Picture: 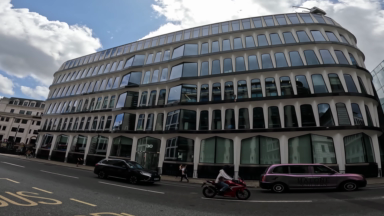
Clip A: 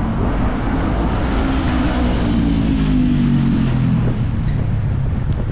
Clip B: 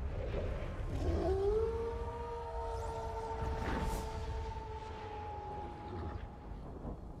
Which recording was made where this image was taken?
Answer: A